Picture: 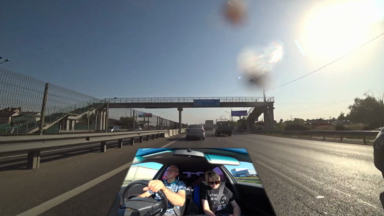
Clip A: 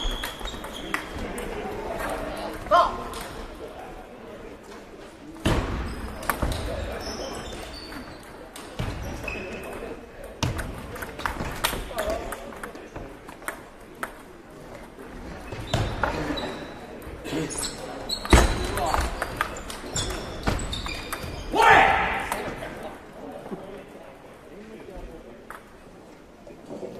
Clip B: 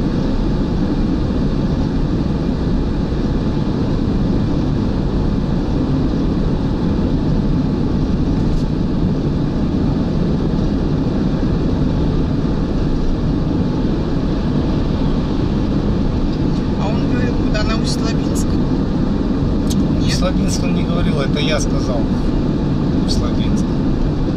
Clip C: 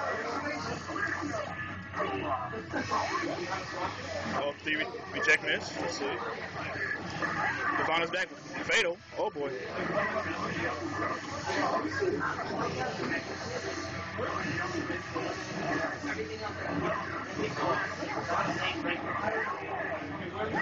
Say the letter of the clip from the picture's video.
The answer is B